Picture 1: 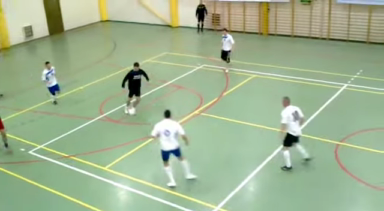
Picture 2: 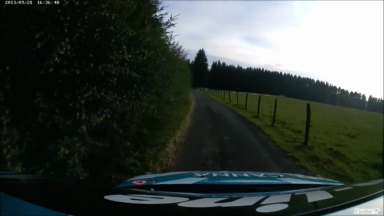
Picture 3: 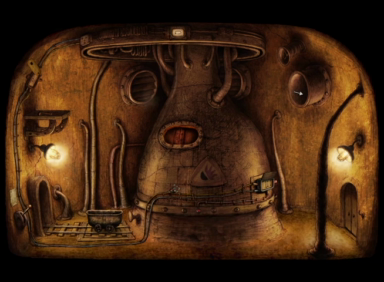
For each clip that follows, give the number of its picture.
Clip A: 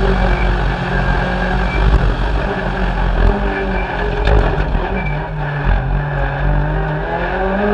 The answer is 2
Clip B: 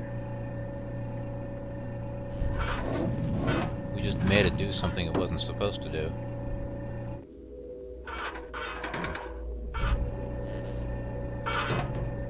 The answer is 3